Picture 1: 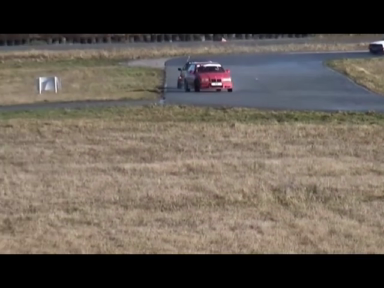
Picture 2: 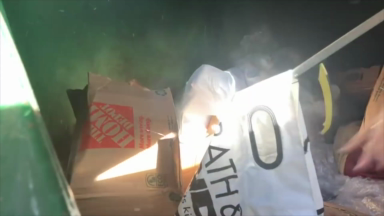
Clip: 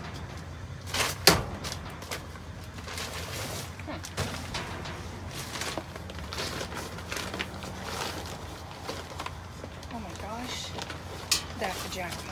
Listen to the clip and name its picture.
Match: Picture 2